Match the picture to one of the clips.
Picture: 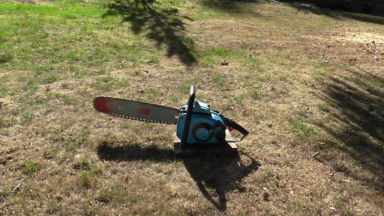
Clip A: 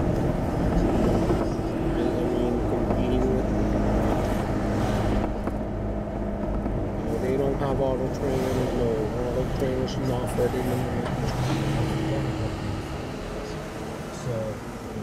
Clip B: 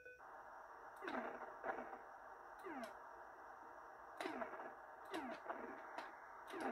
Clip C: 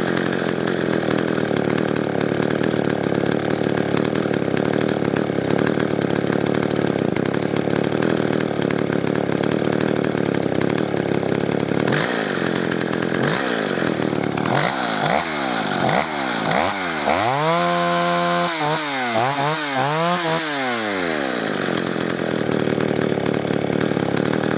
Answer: C